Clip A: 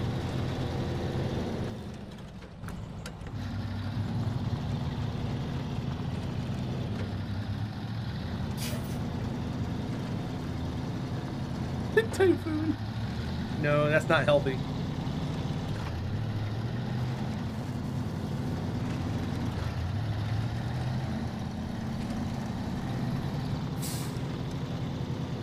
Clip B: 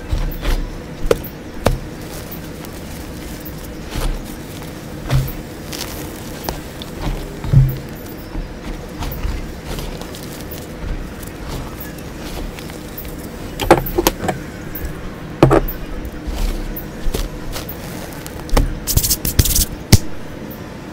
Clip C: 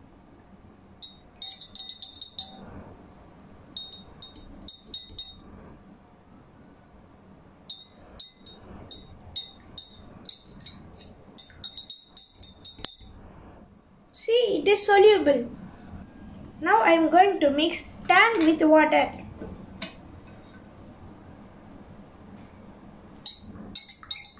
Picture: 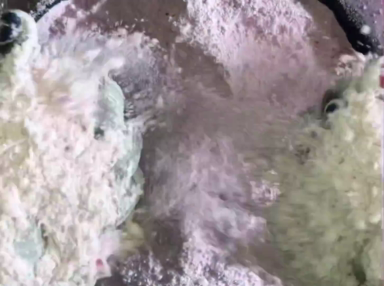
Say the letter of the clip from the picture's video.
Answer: B